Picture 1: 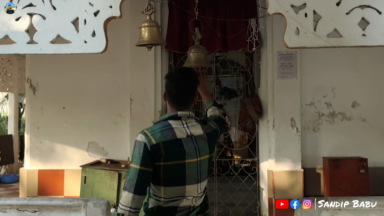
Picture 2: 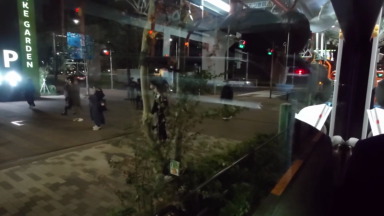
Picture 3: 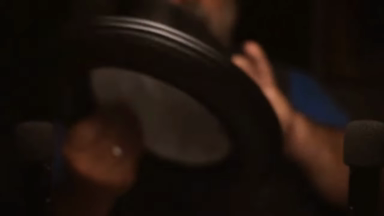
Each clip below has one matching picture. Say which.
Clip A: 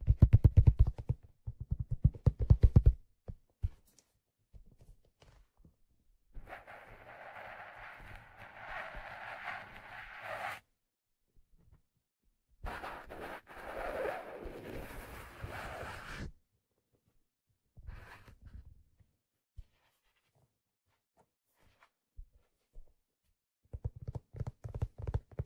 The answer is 3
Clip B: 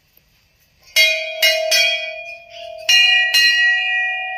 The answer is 1